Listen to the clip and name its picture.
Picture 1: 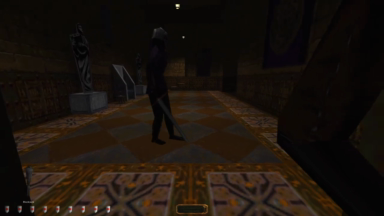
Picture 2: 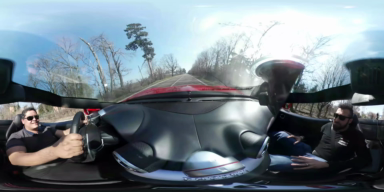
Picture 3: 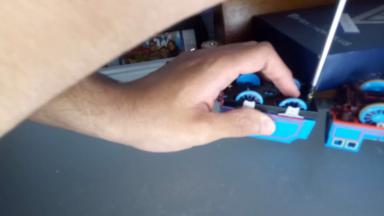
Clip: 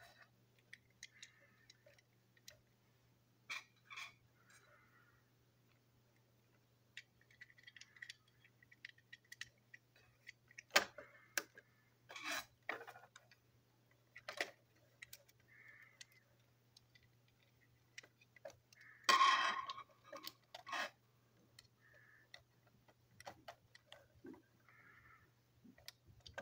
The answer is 3